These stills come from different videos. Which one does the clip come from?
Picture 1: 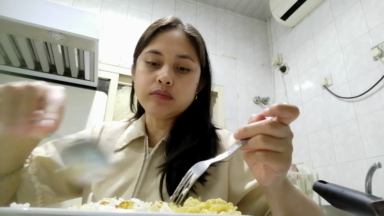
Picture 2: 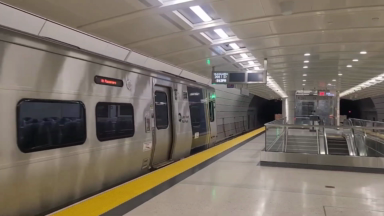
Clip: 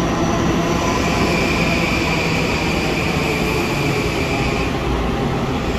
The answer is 2